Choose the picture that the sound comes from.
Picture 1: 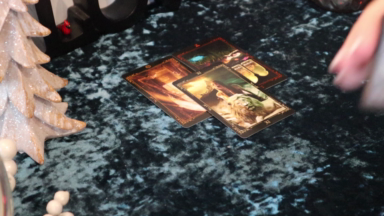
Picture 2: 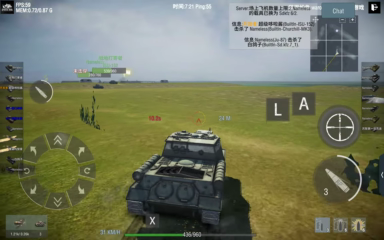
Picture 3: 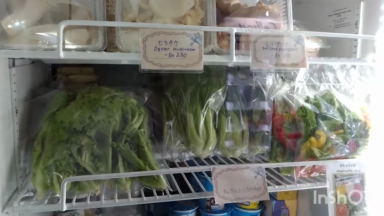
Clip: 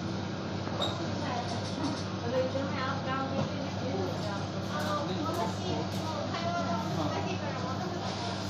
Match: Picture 3